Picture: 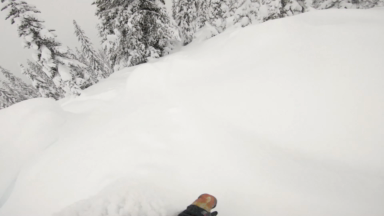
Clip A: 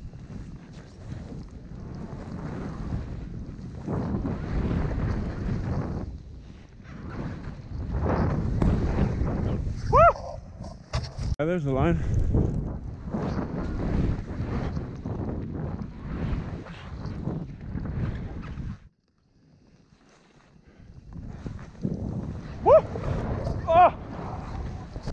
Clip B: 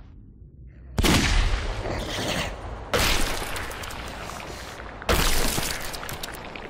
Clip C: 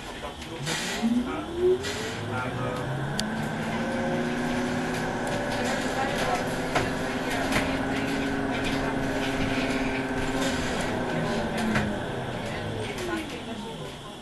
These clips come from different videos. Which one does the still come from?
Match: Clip A